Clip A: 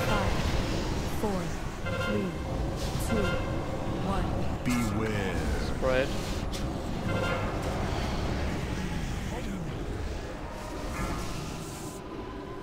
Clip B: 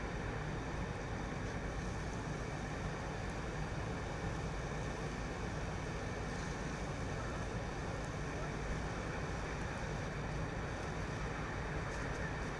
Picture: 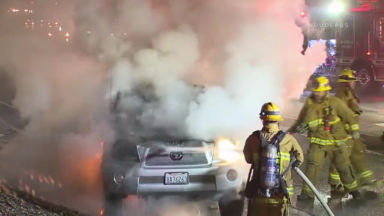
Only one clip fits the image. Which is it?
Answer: B